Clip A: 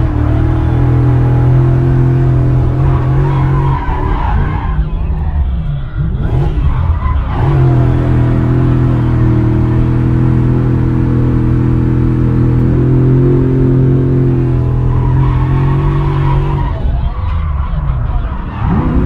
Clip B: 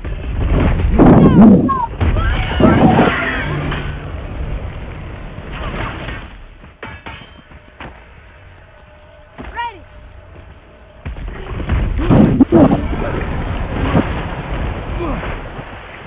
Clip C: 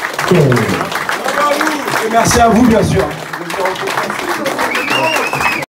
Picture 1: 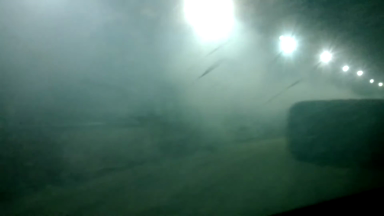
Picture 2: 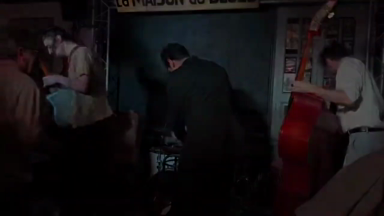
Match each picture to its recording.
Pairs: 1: A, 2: C